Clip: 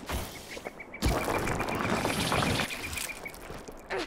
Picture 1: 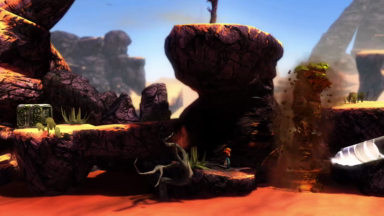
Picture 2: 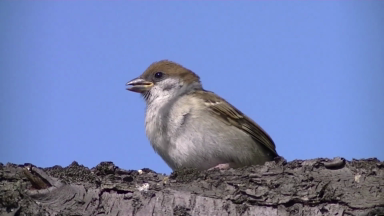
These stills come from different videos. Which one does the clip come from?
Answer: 1